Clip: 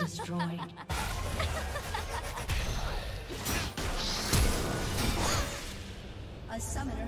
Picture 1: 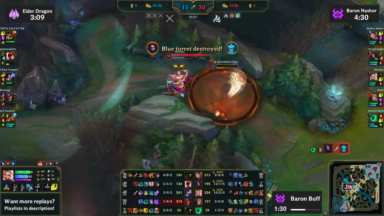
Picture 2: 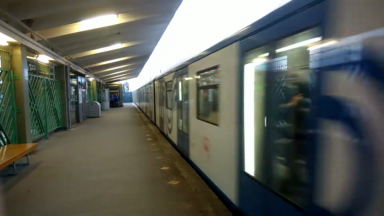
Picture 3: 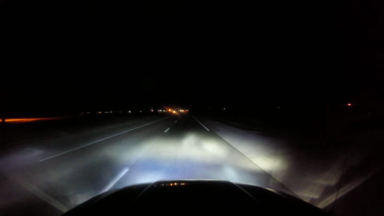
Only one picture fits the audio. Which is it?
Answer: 1